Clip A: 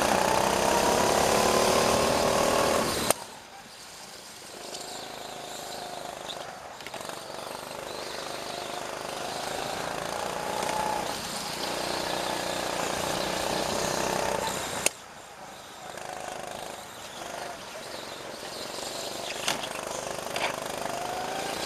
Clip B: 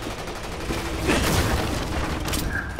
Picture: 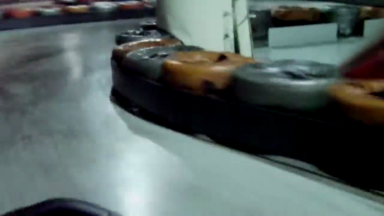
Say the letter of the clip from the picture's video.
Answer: A